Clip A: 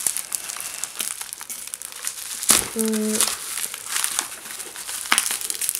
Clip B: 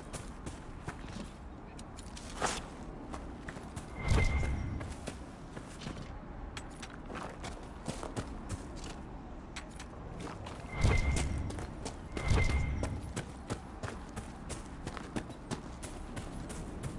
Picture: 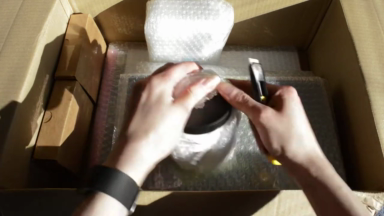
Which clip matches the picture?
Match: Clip A